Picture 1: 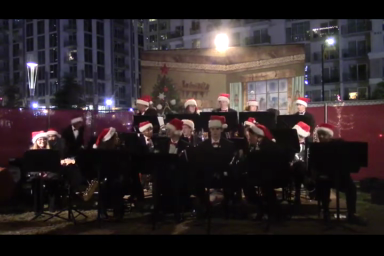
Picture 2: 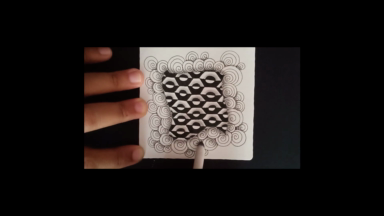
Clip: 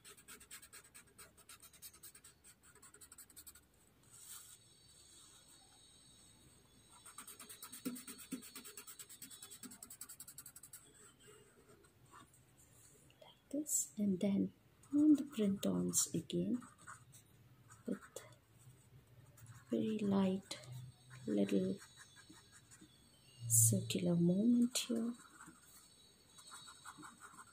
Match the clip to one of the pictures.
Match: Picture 2